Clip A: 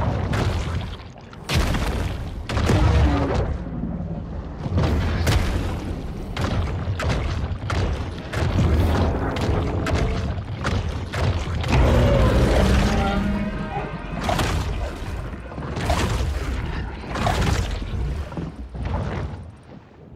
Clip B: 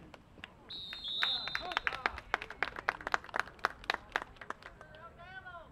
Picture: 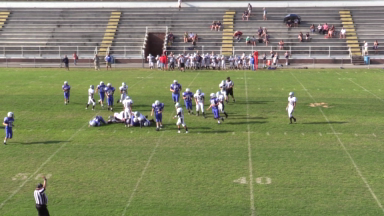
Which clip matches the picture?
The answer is B